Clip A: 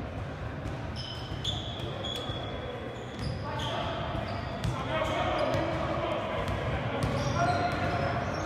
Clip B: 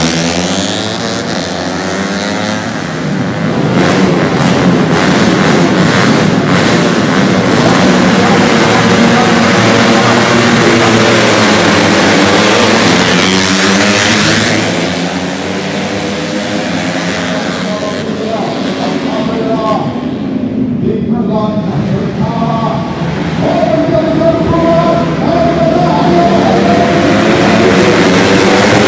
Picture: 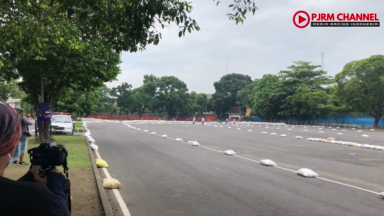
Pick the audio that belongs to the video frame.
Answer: B